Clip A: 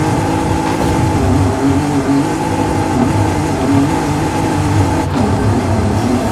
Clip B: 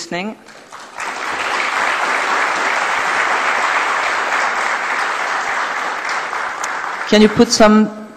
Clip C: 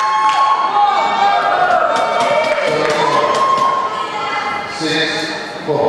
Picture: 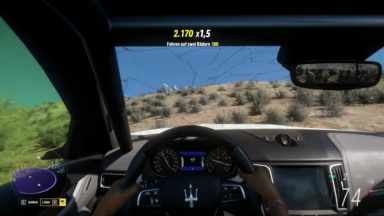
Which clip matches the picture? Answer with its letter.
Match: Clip A